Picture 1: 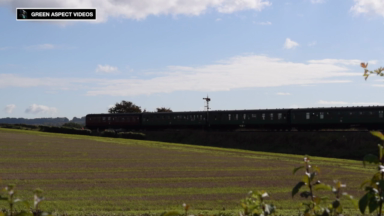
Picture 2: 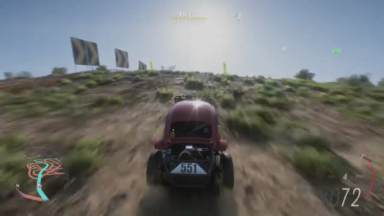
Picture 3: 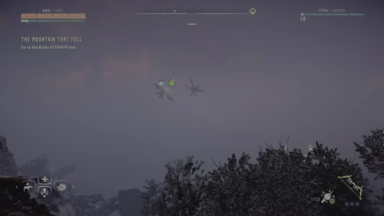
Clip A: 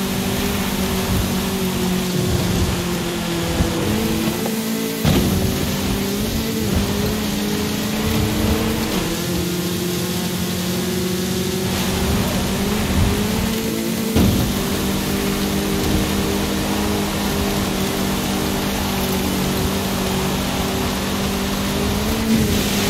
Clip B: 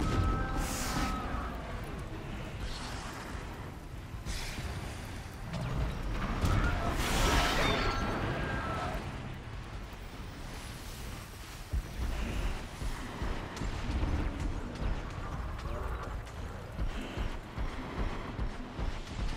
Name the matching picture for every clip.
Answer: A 2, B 3